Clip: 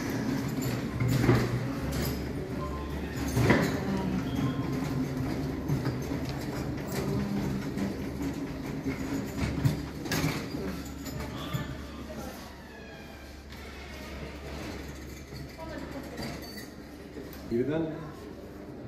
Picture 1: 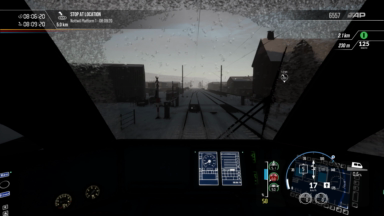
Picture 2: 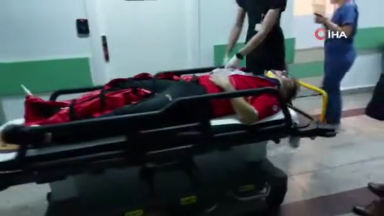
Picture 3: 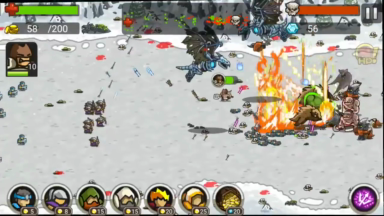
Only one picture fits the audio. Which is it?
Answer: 2